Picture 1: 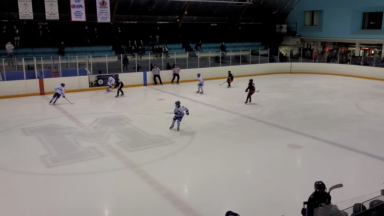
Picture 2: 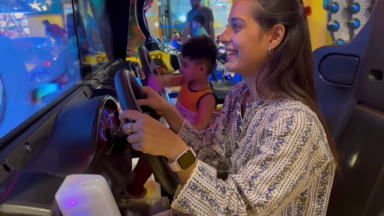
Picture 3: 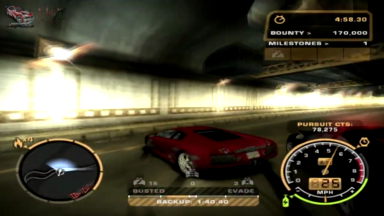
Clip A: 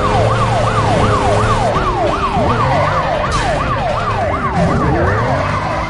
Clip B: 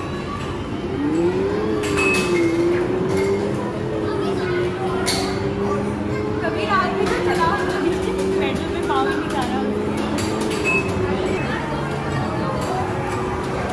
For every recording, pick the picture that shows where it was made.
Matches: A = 3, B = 2